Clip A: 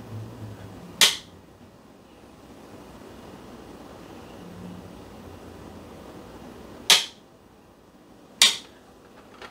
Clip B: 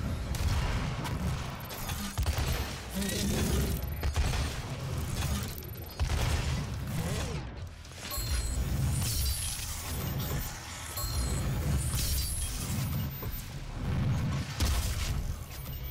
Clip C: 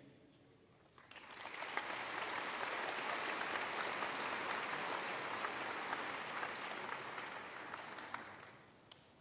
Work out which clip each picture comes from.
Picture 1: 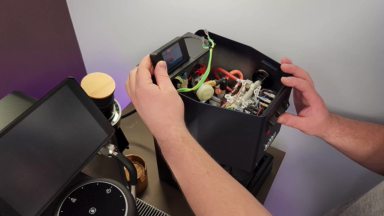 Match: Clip A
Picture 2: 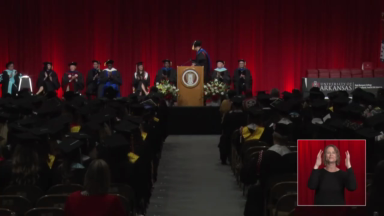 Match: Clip C